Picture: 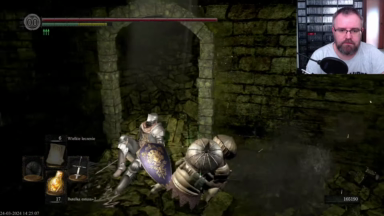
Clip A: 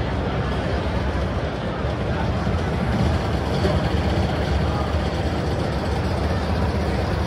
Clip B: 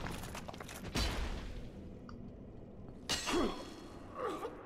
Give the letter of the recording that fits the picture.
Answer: B